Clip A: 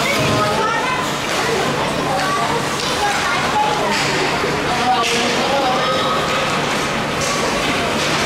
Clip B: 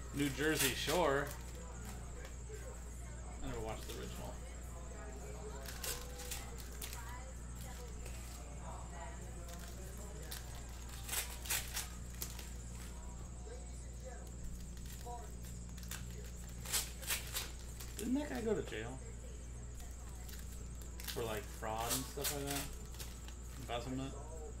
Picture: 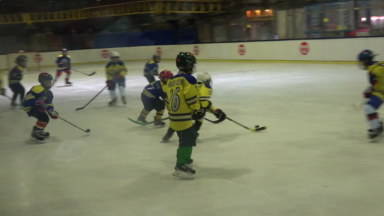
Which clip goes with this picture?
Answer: A